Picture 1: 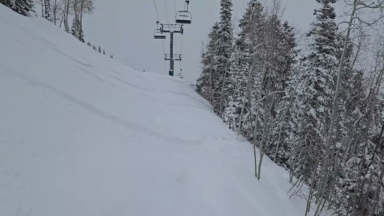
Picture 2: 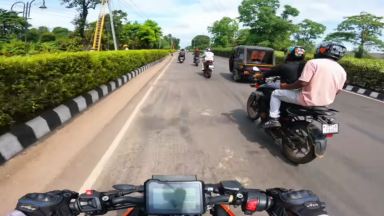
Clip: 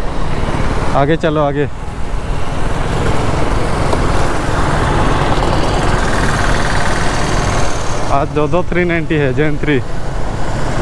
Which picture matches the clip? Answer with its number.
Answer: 2